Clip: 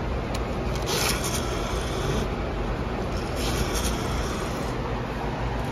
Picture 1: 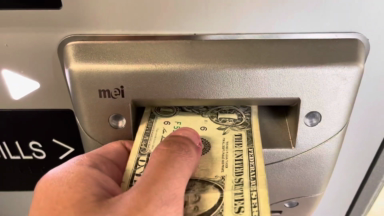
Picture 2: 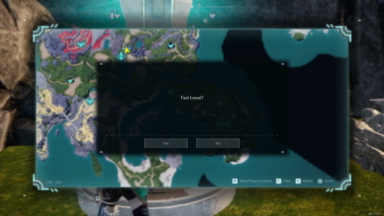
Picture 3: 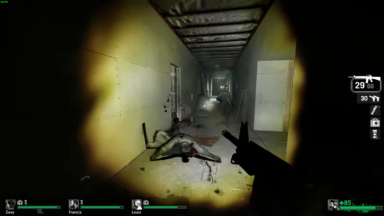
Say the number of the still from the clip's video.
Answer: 1